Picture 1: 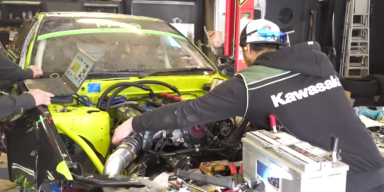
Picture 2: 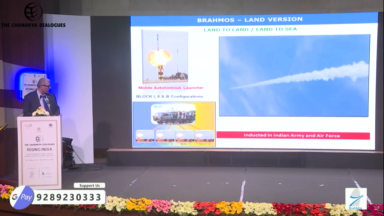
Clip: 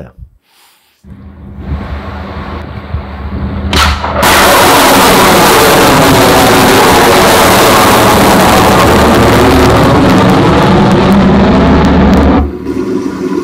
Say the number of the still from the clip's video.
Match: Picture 2